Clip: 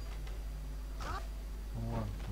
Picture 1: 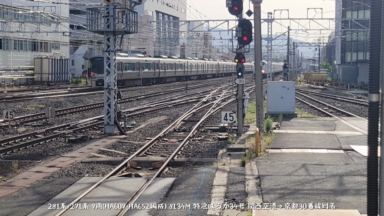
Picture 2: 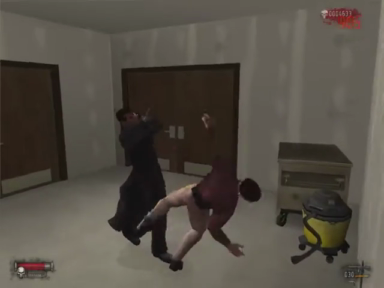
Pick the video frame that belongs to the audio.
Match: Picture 2